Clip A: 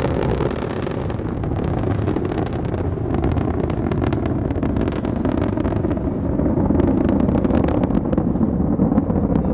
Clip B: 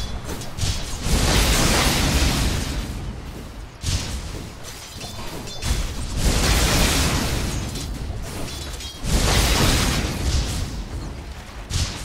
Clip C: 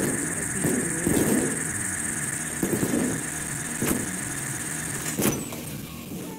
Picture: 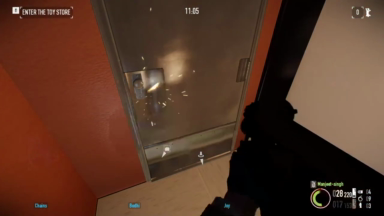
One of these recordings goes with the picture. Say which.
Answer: C